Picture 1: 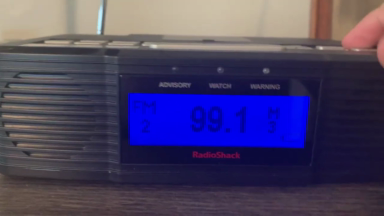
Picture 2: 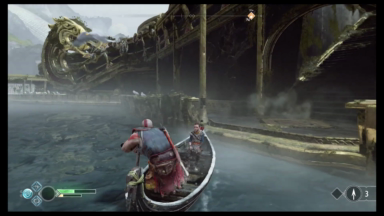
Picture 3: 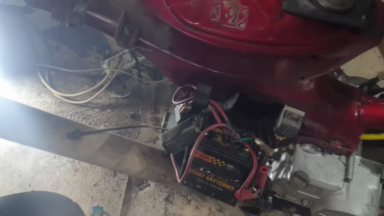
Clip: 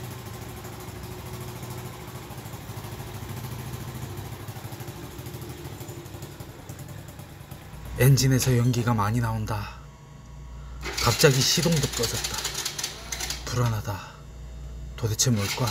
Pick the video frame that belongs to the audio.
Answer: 3